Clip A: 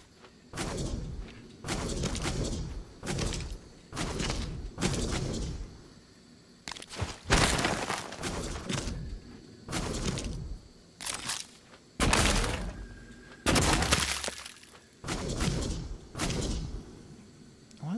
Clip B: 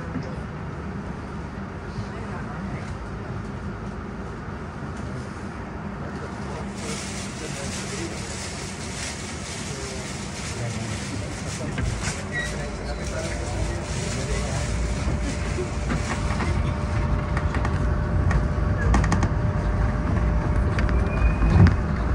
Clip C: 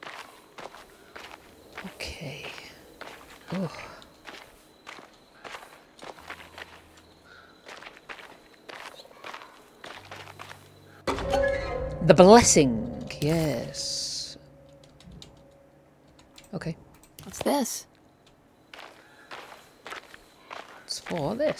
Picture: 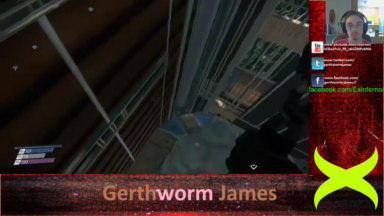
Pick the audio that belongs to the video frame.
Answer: A